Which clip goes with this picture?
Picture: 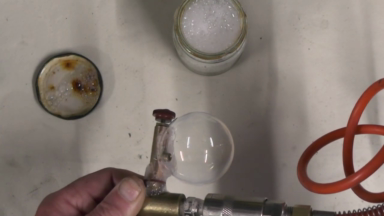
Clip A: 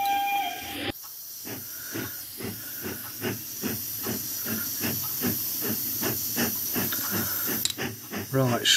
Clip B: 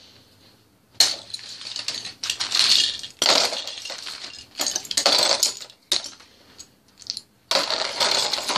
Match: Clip A